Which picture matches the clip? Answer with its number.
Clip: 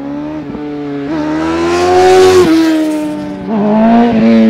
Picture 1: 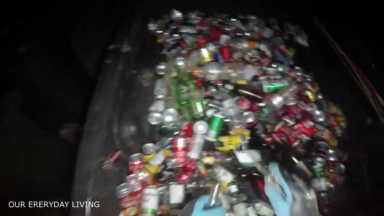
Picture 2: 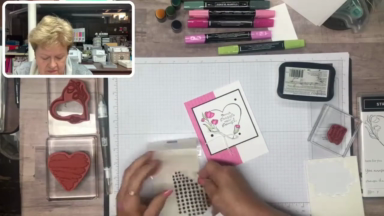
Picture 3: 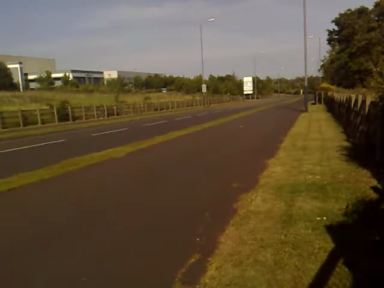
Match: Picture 3